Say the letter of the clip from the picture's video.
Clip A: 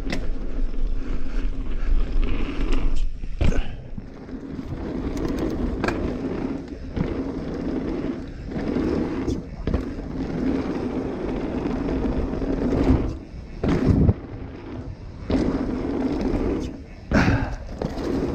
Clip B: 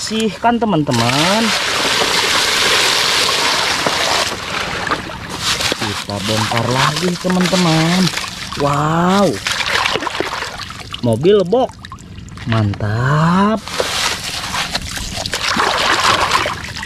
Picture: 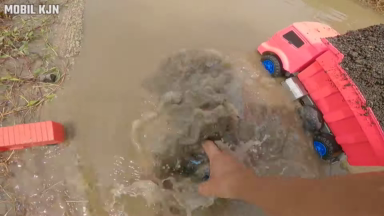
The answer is B